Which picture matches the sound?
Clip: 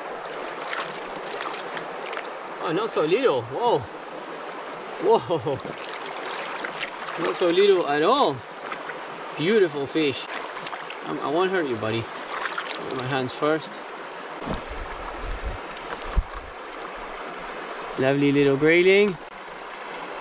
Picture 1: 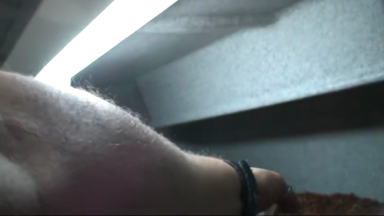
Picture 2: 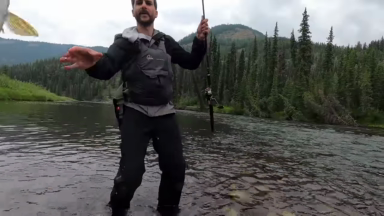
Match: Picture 2